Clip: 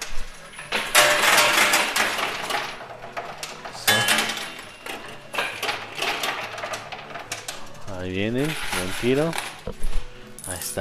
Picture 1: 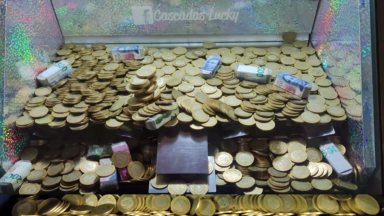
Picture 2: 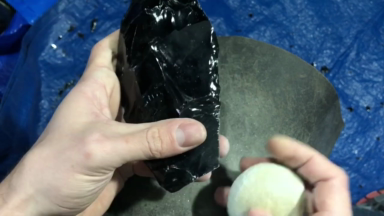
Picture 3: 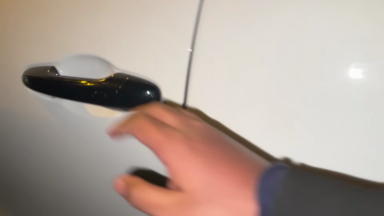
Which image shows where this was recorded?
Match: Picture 1